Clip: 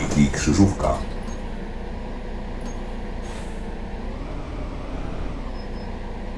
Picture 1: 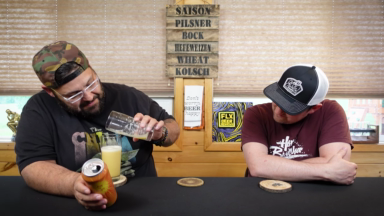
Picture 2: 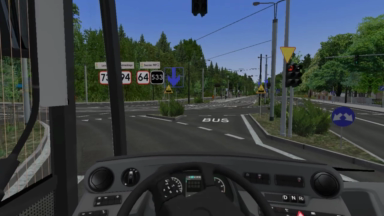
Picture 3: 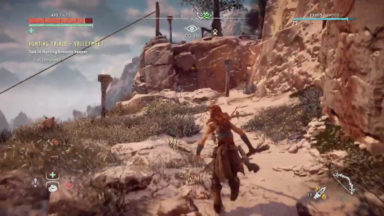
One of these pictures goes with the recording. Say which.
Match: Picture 2